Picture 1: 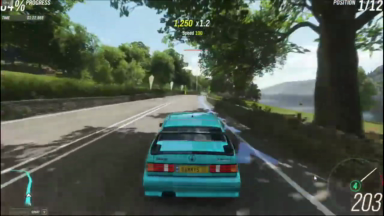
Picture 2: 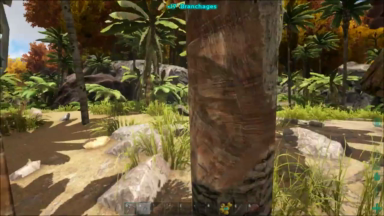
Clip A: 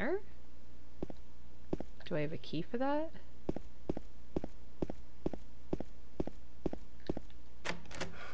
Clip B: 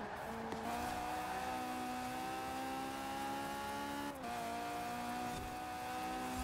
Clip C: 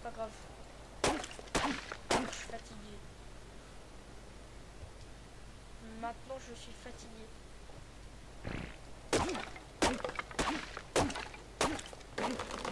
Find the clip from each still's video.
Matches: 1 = B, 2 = C